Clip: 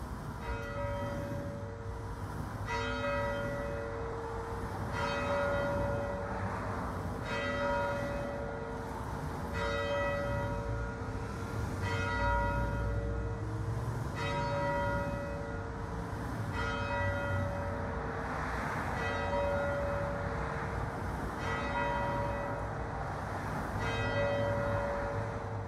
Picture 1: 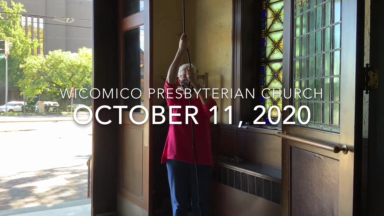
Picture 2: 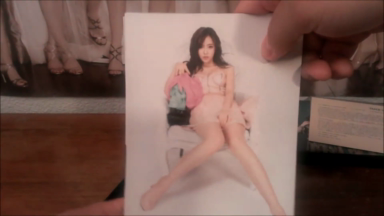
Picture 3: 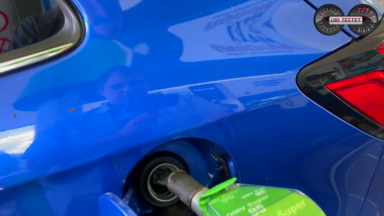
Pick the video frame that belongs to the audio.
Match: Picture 1